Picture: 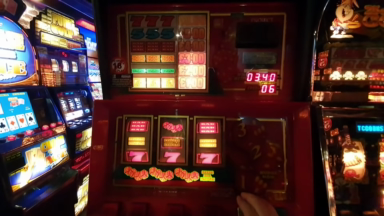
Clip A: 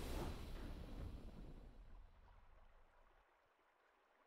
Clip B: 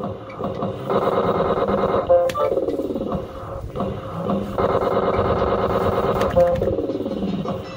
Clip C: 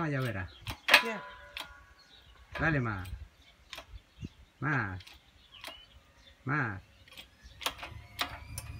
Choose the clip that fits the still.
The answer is B